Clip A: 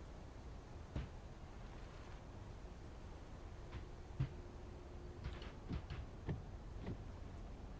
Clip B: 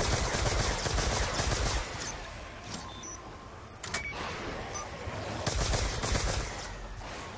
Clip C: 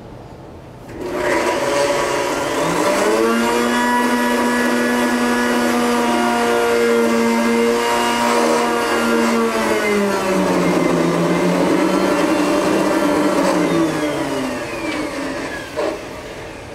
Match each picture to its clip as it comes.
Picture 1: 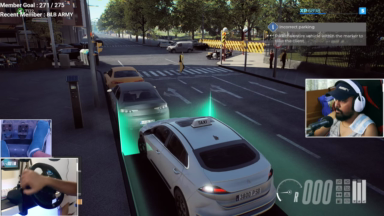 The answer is A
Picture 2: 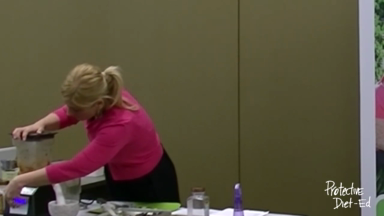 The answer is C